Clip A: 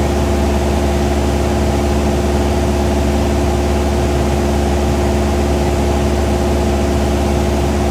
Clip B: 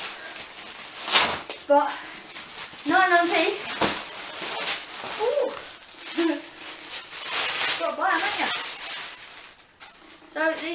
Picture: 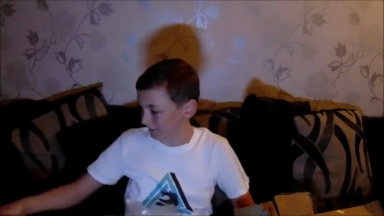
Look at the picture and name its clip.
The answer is B